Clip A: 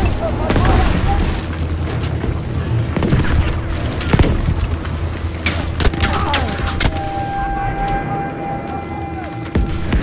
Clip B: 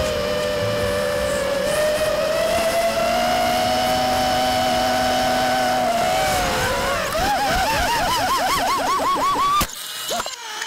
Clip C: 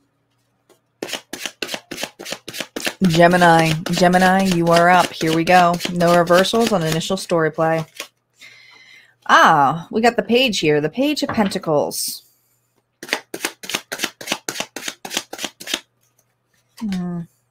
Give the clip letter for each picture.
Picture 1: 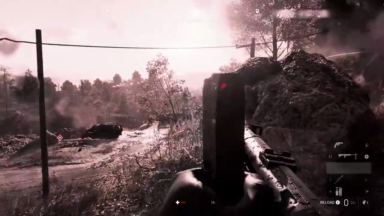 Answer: A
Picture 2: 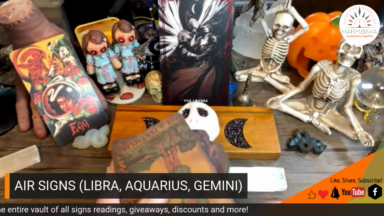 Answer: C